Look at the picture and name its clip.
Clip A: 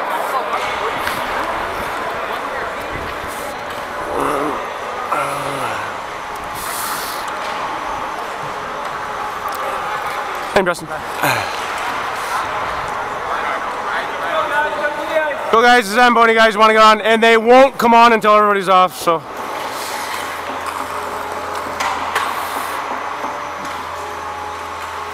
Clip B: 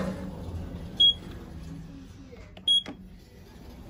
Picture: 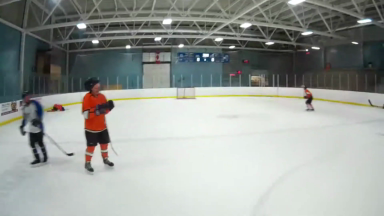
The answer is A